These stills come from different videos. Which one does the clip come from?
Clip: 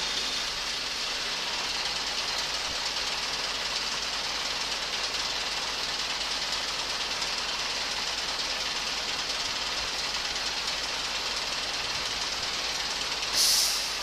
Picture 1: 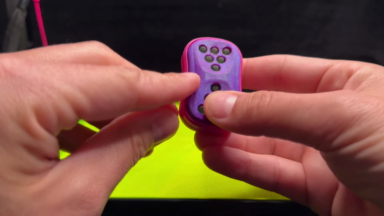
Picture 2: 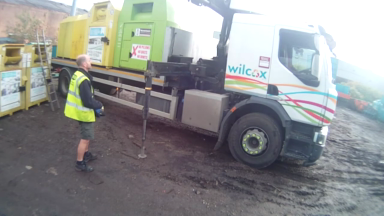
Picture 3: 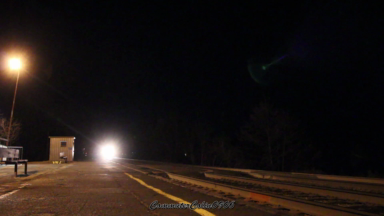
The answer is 2